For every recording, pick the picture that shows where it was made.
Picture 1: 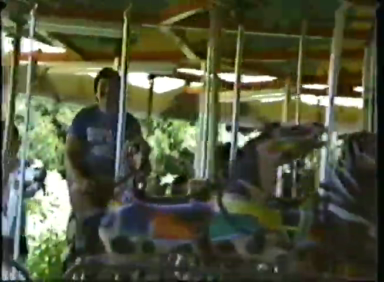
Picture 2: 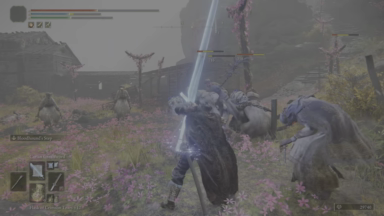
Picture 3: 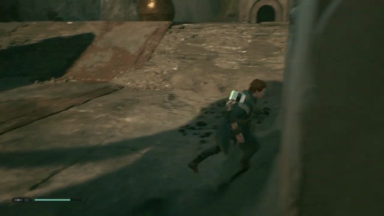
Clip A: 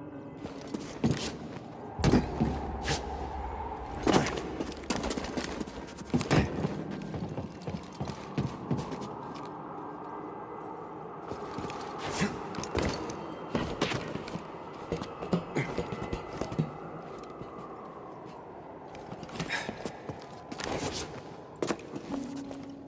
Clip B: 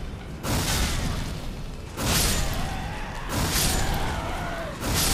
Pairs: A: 3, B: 2